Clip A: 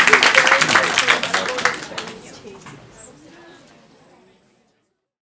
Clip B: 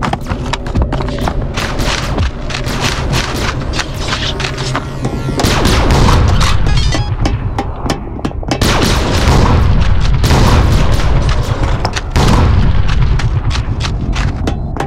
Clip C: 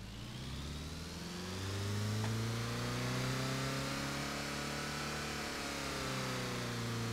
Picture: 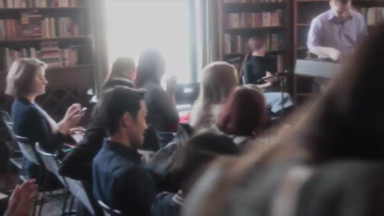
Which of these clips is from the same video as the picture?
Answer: A